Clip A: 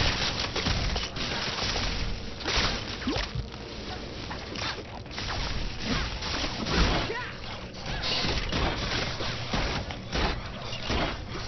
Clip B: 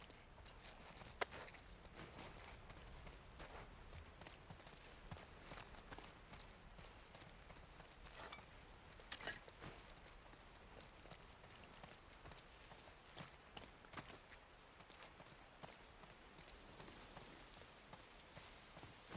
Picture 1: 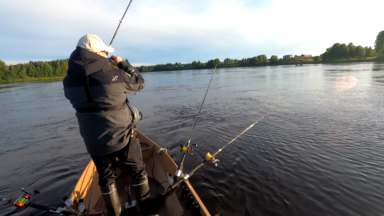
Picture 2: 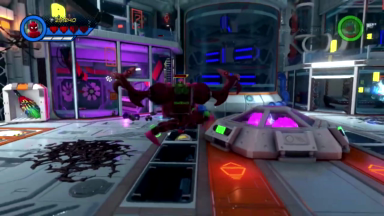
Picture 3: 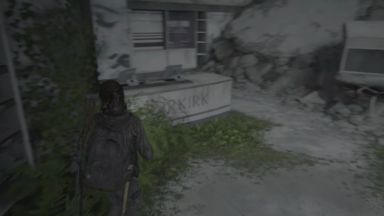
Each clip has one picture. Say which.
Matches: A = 2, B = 3